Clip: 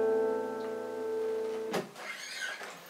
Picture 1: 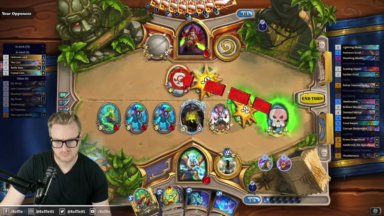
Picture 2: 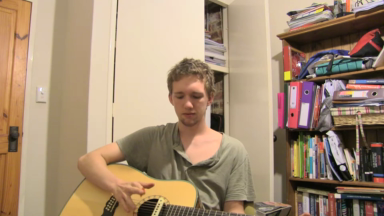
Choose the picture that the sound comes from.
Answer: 2